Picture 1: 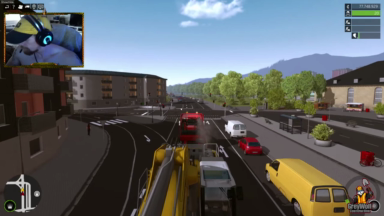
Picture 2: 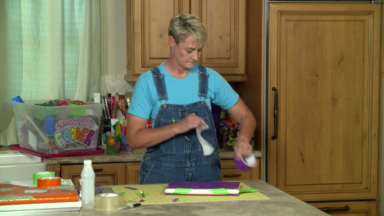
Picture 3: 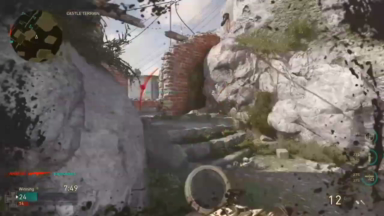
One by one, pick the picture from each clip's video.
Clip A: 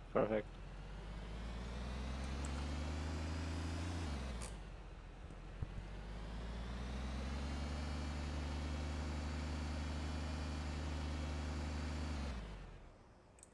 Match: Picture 1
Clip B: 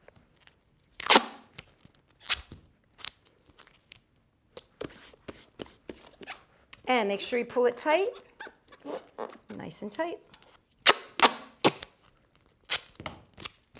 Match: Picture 2